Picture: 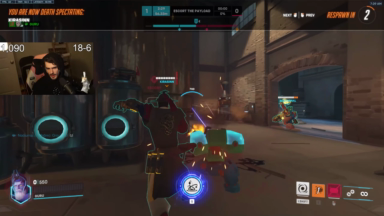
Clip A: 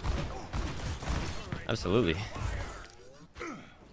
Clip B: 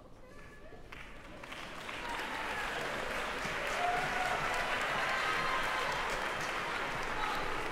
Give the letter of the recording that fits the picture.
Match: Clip A